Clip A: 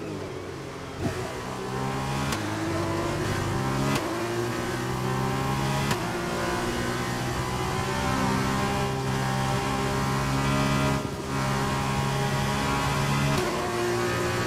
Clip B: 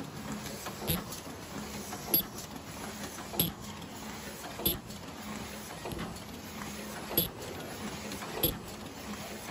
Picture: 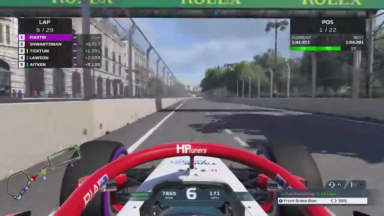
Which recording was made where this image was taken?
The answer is A